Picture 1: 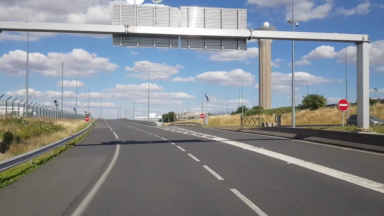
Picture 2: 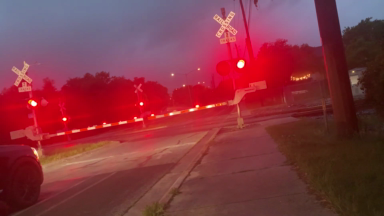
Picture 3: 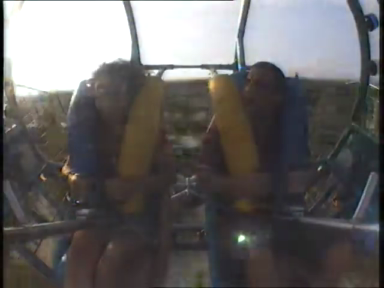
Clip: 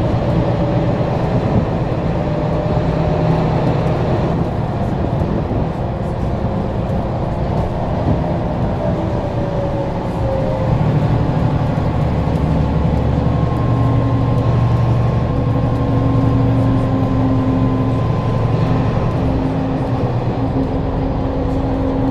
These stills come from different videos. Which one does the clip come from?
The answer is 1